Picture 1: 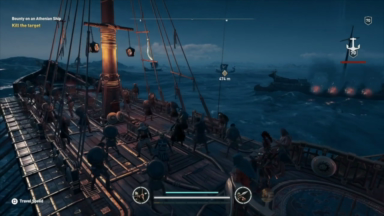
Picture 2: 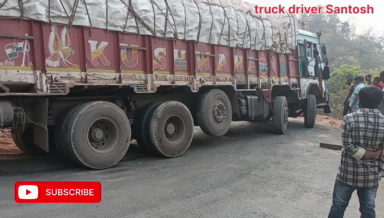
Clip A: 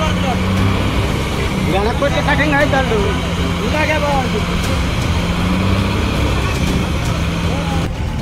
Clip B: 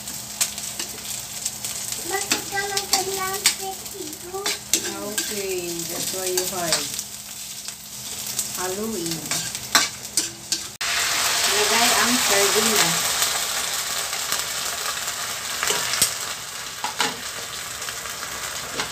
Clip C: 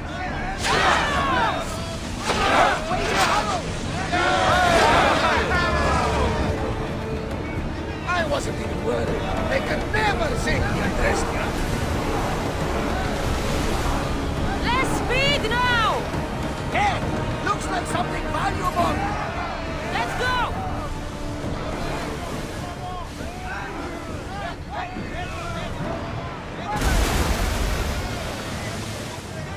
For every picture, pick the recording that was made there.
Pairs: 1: C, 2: A